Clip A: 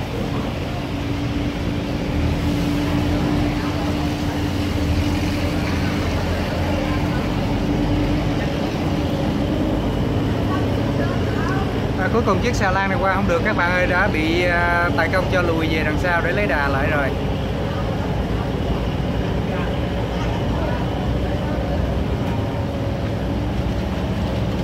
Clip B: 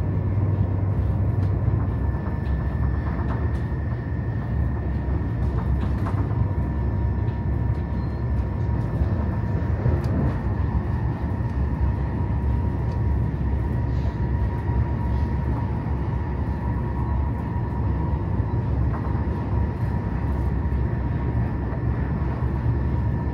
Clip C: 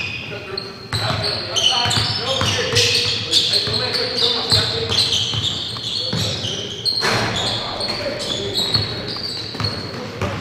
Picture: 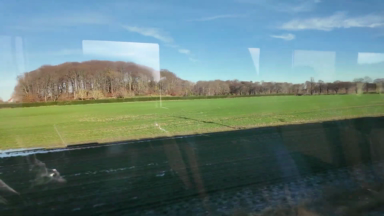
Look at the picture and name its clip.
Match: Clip B